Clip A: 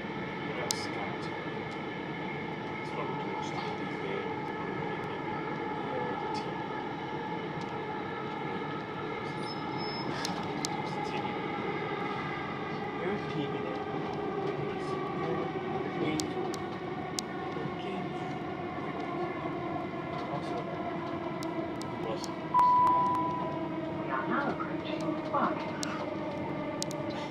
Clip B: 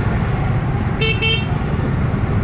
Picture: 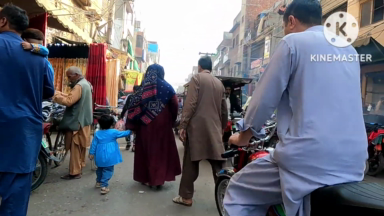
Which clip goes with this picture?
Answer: B